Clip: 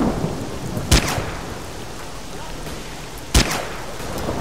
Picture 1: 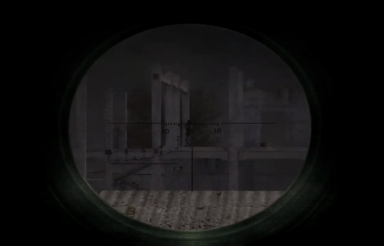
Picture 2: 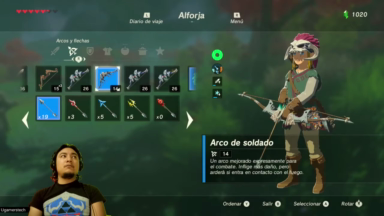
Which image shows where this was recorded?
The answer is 1